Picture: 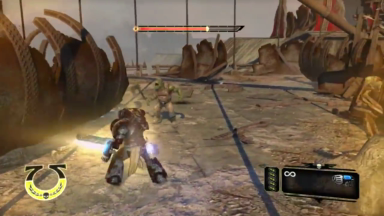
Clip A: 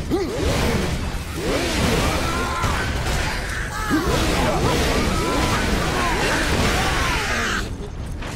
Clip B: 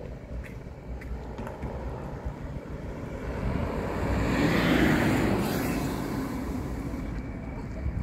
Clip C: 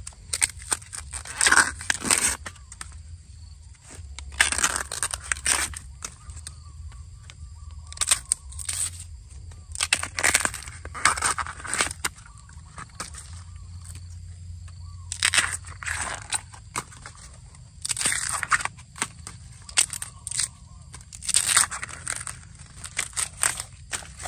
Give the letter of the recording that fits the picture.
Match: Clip A